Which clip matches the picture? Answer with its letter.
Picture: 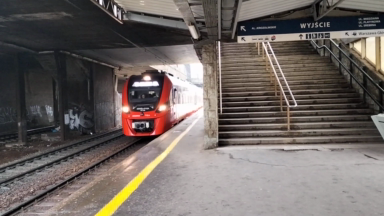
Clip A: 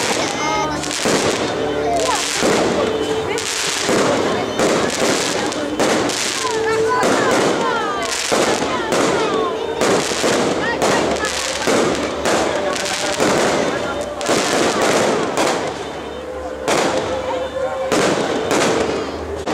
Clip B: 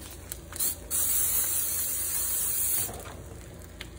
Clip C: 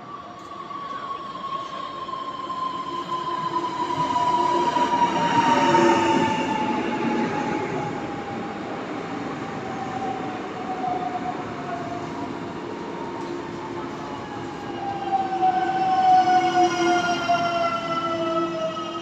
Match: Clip C